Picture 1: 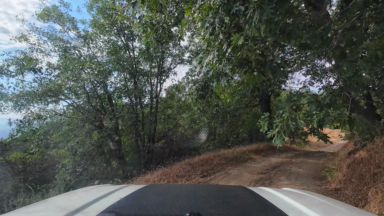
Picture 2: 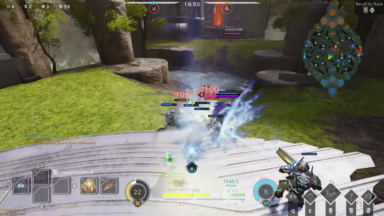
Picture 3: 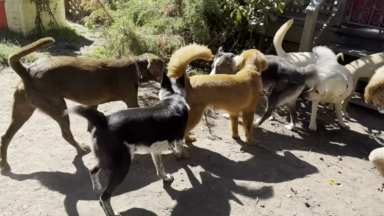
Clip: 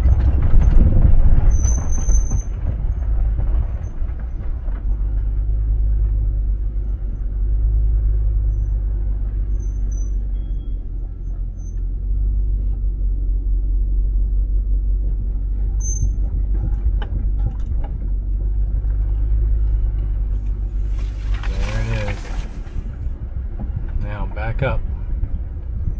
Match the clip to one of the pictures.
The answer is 1